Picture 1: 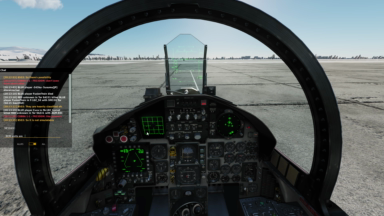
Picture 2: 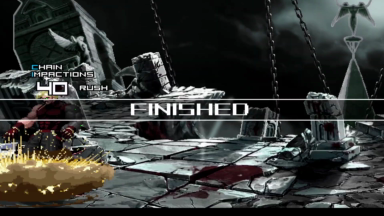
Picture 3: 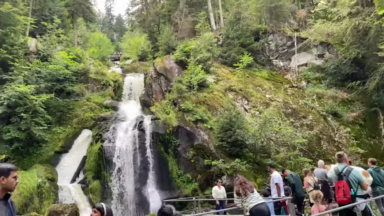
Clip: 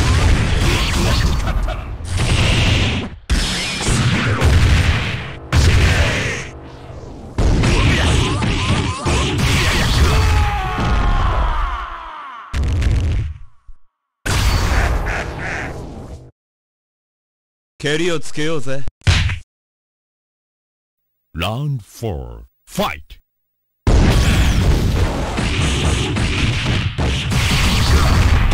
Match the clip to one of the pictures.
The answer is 2